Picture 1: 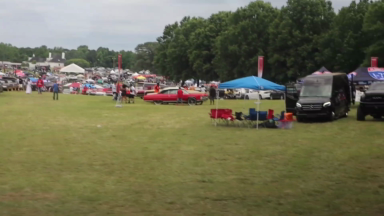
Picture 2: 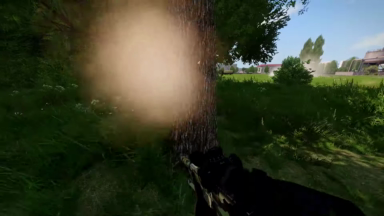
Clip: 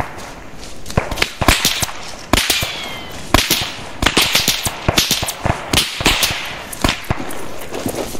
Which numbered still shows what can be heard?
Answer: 2